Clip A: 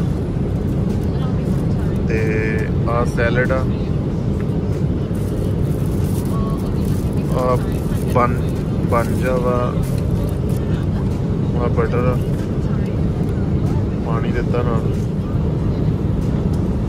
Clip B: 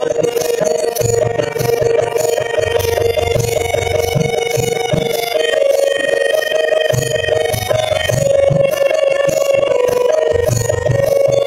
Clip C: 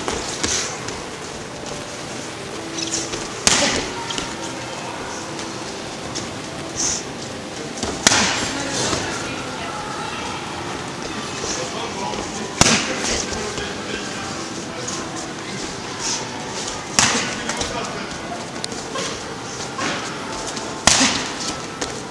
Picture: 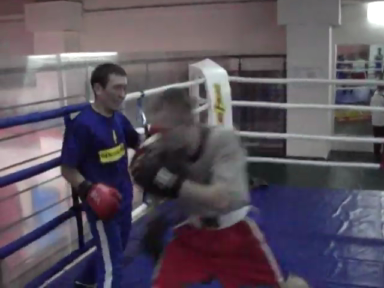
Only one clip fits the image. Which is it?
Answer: C